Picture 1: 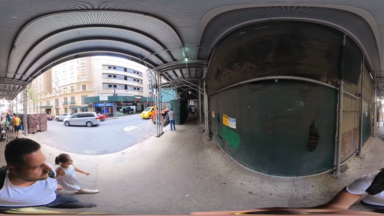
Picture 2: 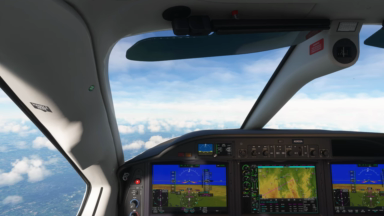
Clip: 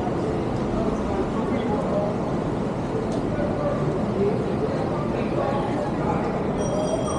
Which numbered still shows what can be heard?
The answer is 1